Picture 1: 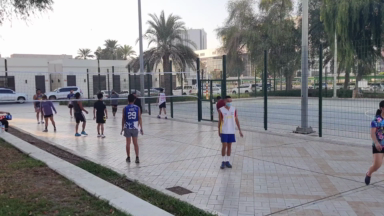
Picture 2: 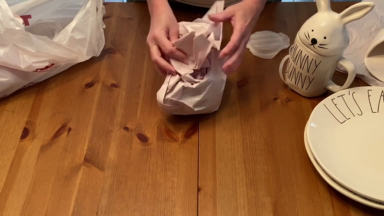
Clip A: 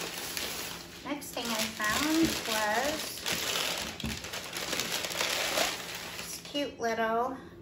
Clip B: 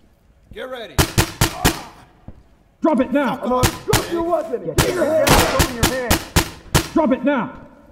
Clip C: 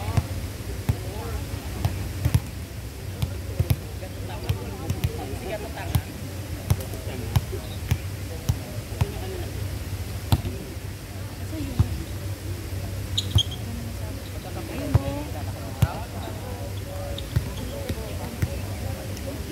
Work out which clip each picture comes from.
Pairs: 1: C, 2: A